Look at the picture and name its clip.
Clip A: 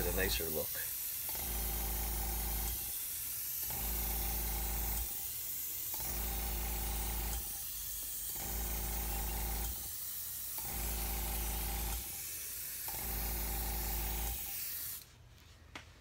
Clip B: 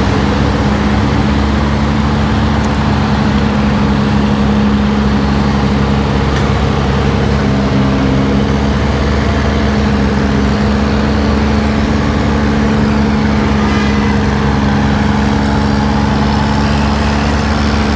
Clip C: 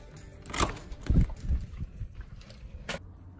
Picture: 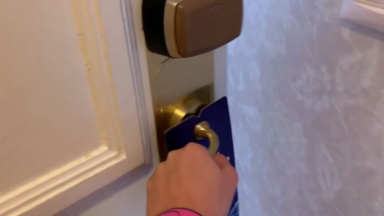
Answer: C